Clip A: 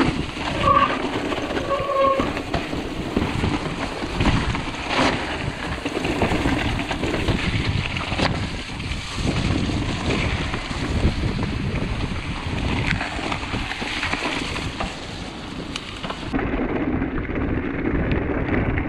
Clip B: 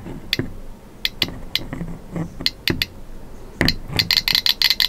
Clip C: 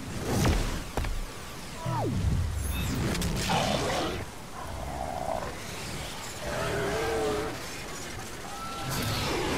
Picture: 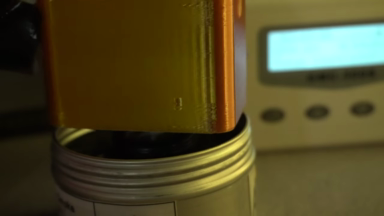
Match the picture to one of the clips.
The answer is B